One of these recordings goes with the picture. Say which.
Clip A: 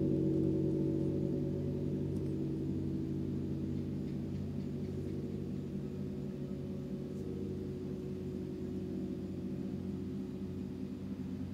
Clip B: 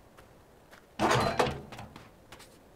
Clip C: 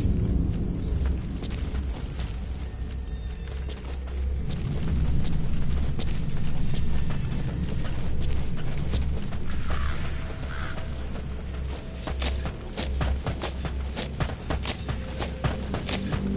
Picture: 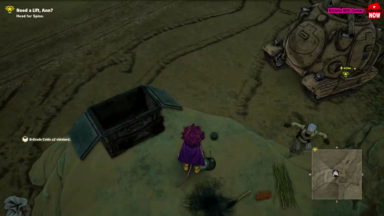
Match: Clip B